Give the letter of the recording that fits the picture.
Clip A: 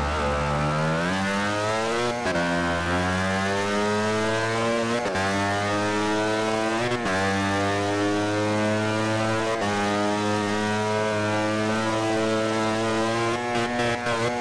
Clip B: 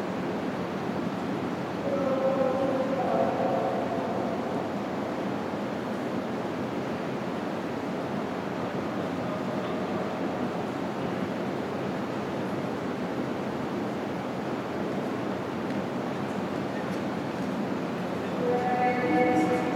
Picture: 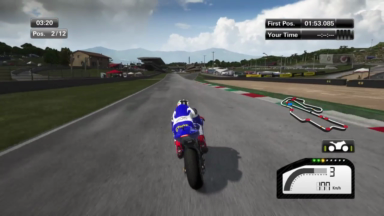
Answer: A